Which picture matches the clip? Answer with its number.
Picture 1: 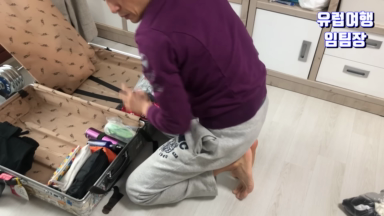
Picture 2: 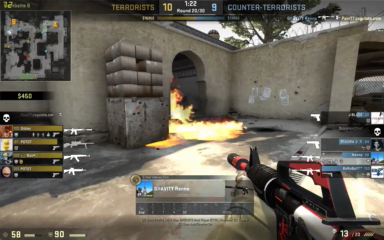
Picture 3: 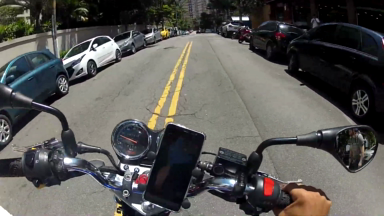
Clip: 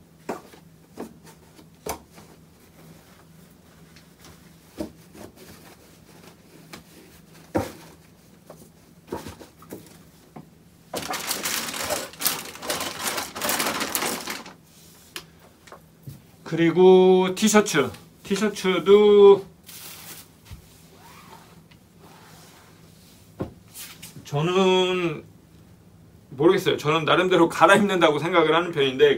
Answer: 1